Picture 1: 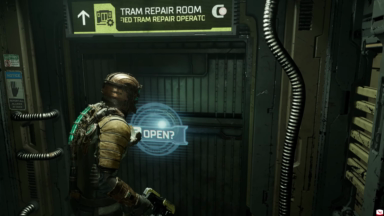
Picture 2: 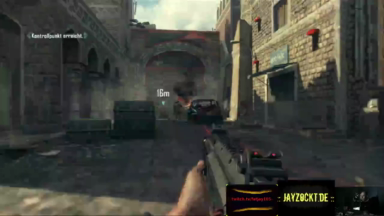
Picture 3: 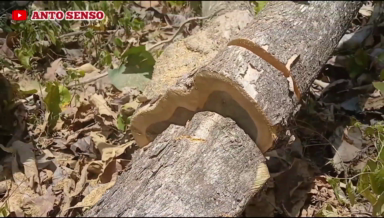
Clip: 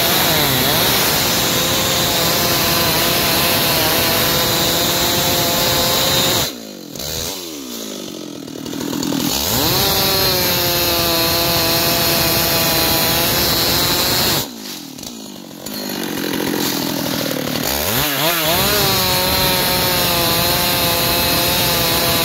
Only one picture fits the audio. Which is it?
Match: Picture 3